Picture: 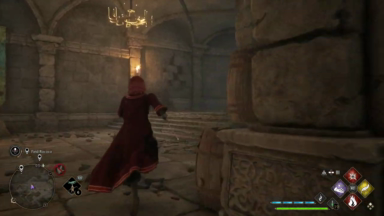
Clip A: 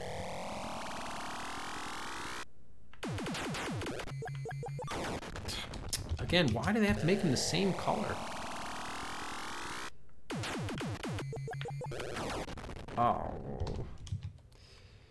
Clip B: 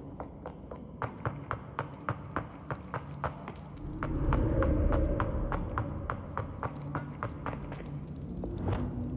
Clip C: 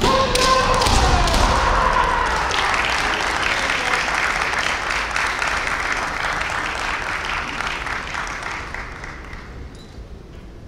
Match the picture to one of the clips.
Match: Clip B